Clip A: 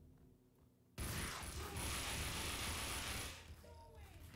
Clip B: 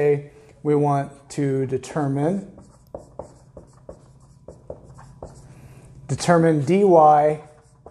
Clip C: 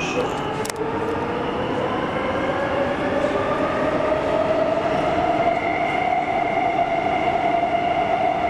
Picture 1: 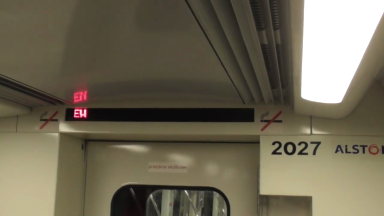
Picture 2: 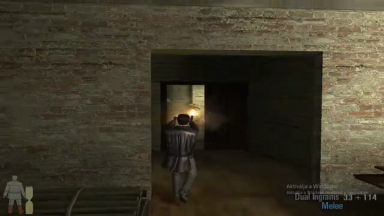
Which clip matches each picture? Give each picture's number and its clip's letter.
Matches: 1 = C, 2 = A